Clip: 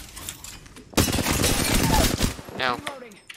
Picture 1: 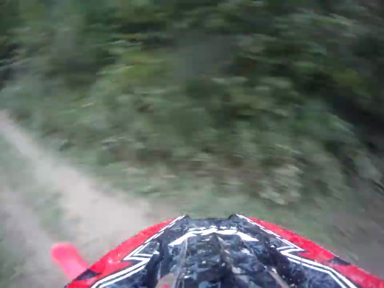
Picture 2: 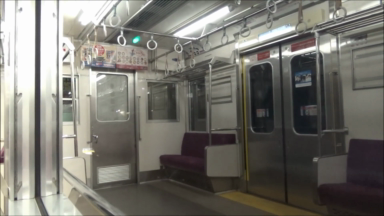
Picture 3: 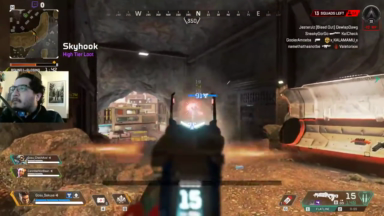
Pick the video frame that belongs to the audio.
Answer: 3